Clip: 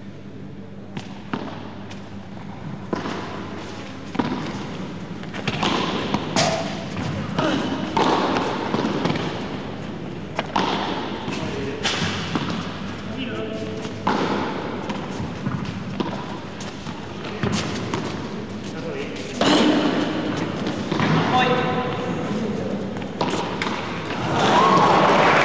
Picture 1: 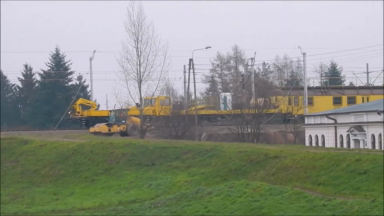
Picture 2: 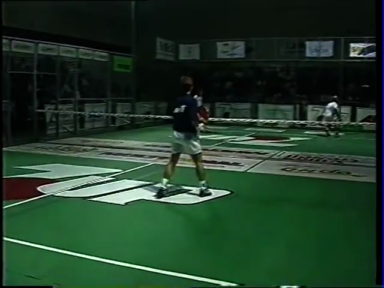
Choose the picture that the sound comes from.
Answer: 2